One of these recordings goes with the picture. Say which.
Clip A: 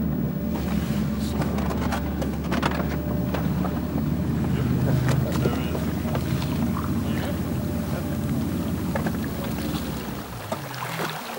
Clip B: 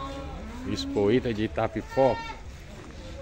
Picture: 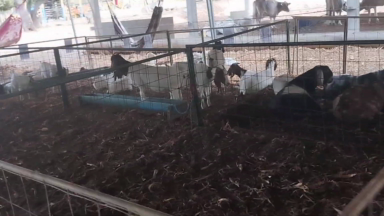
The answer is B